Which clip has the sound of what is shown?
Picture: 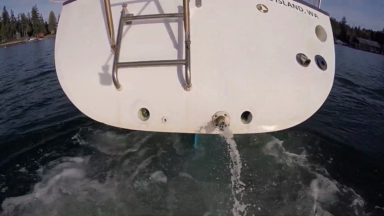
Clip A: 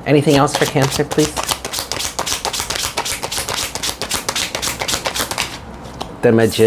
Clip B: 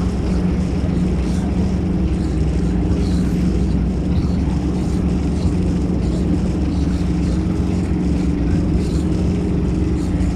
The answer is B